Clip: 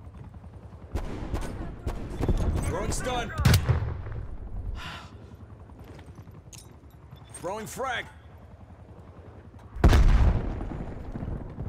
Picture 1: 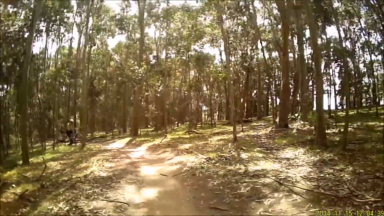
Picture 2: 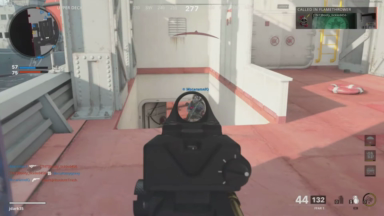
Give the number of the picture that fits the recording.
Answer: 2